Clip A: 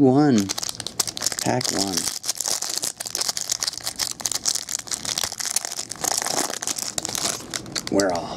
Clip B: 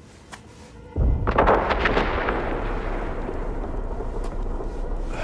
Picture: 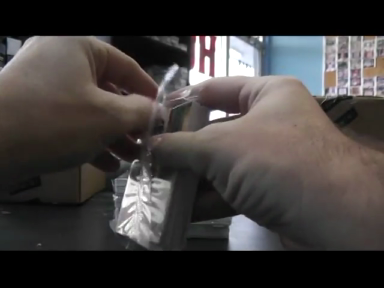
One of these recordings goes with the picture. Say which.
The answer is A